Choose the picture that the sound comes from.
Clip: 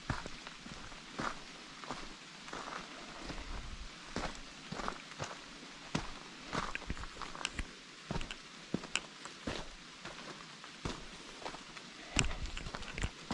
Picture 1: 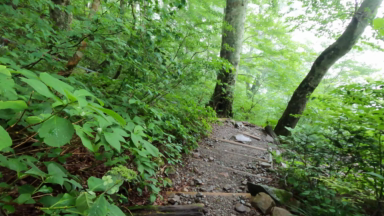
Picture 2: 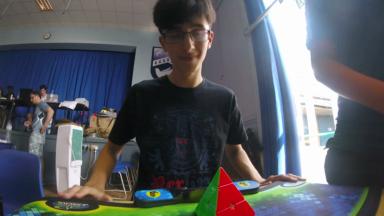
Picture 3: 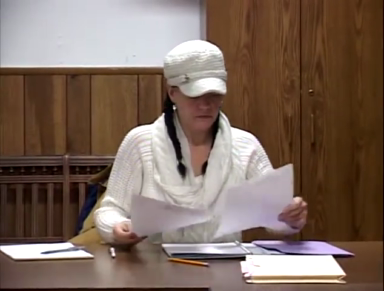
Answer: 1